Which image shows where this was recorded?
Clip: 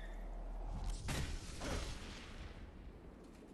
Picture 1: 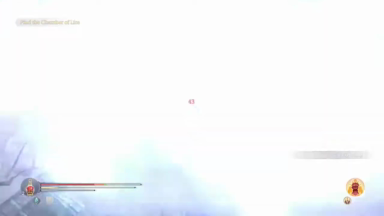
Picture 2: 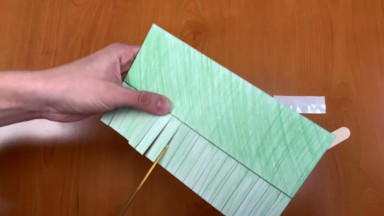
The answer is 1